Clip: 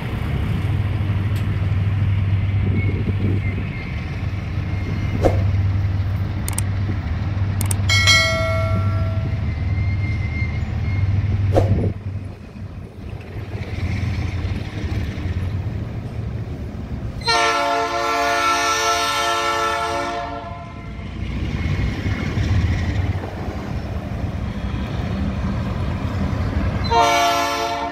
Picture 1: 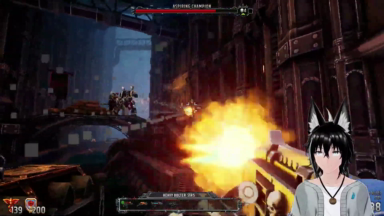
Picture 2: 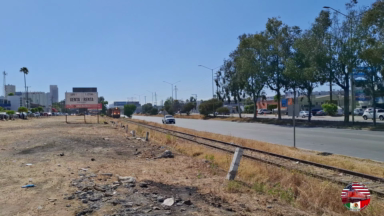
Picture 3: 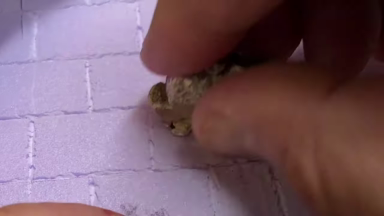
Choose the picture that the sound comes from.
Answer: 2